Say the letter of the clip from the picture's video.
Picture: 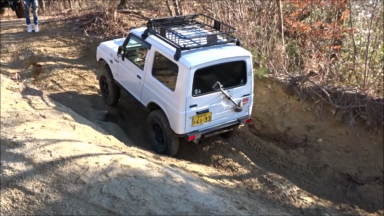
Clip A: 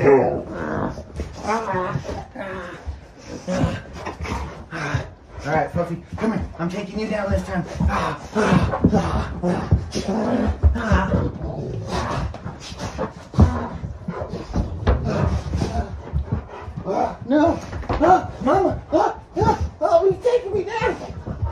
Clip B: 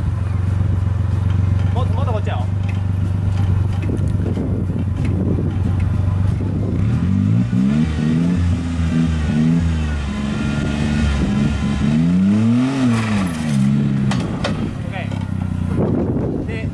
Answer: B